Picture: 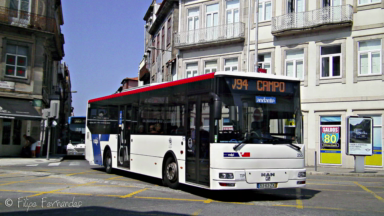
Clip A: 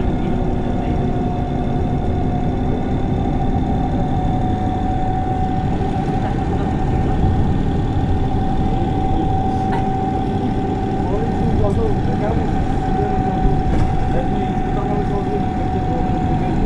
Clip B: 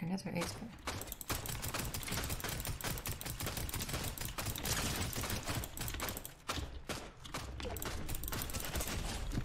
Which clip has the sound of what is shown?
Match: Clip A